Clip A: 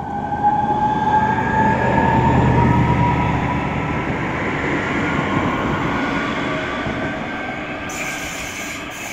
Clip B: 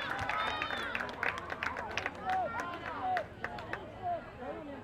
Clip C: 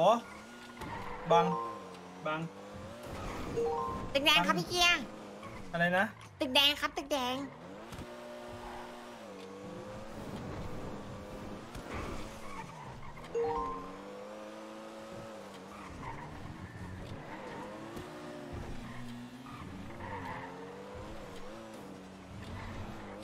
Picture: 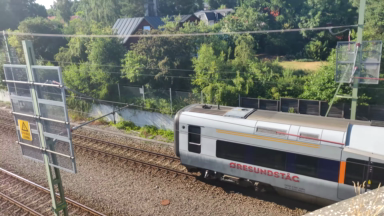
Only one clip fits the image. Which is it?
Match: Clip A